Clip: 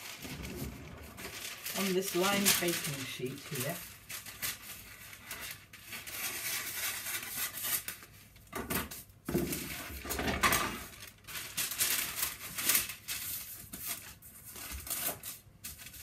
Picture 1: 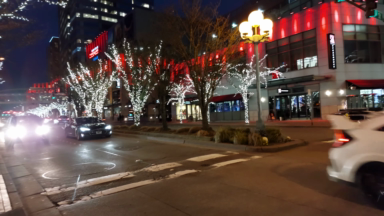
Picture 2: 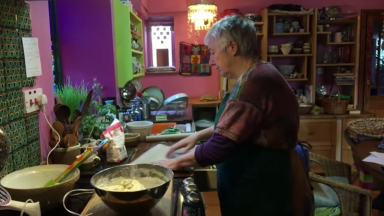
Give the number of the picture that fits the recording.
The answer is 2